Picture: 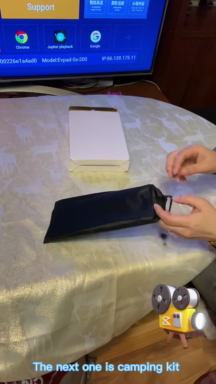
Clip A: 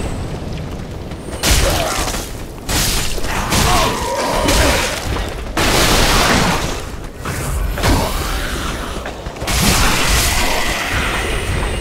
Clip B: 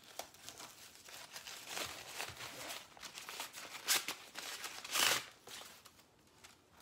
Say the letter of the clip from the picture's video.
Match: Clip B